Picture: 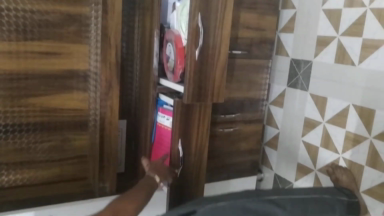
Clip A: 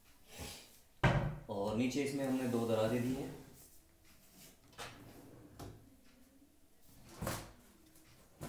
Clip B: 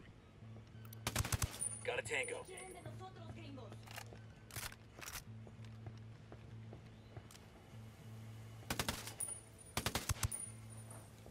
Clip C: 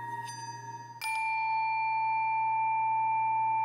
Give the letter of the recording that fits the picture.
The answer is A